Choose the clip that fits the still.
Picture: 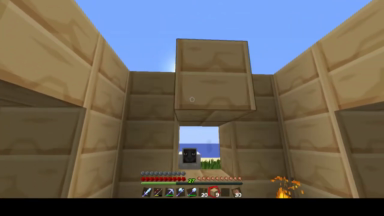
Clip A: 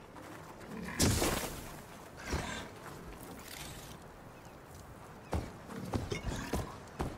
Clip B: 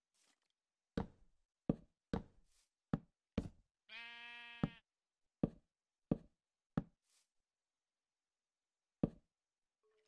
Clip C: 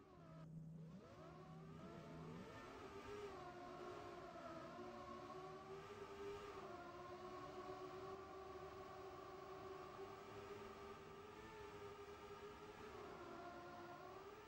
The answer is B